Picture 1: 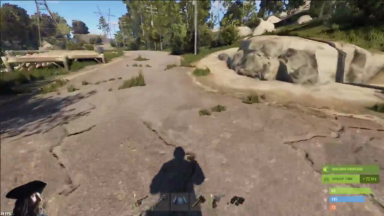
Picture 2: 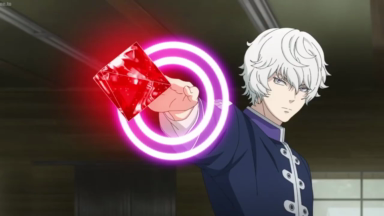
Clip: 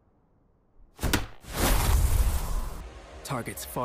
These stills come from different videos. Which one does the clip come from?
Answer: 2